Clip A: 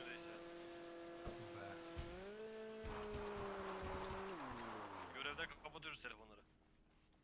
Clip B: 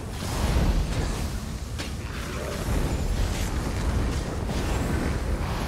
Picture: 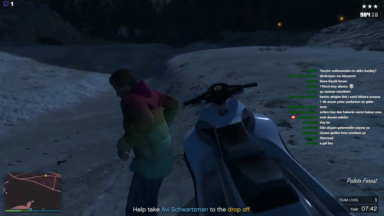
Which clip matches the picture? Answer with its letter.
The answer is A